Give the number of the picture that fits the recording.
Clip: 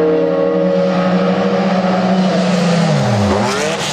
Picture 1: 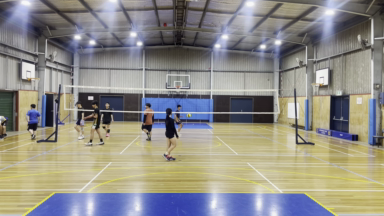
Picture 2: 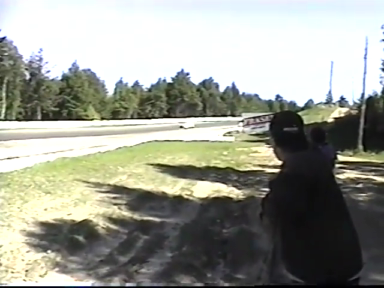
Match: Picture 2